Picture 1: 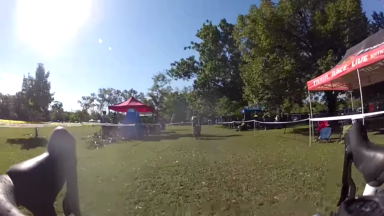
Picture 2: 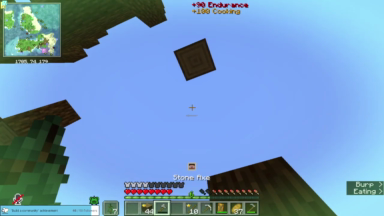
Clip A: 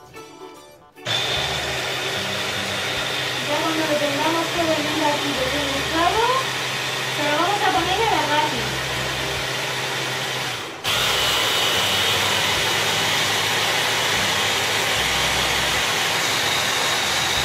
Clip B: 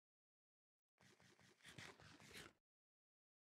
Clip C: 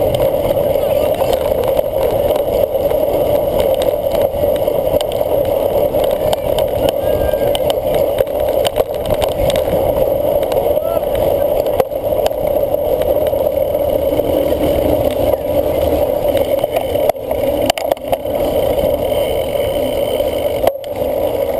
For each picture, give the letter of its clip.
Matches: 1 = C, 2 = B